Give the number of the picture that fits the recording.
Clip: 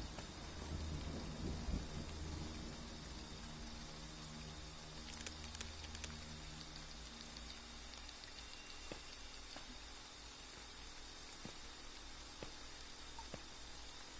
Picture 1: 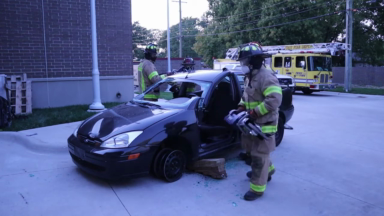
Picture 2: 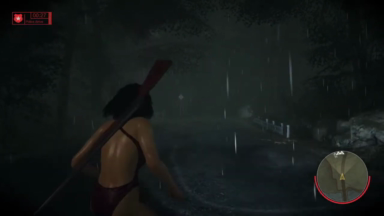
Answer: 2